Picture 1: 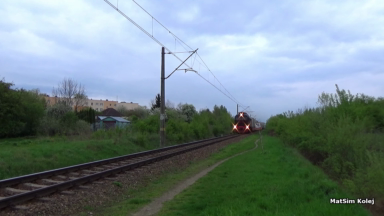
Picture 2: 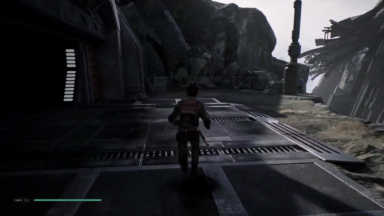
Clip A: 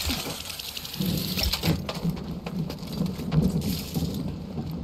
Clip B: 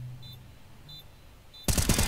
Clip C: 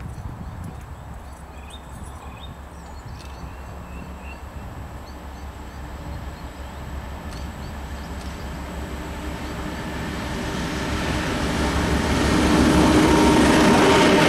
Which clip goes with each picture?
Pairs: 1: C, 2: A